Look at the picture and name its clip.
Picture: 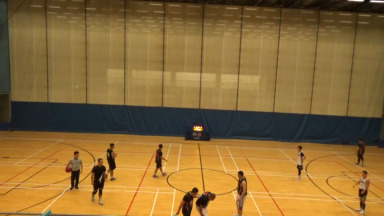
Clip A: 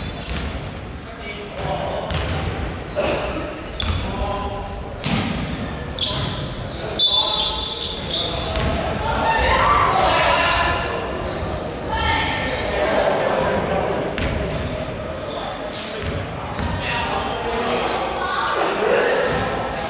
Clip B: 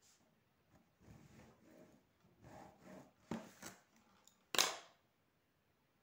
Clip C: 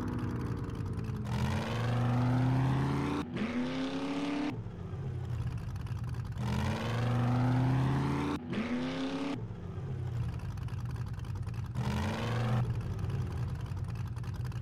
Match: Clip A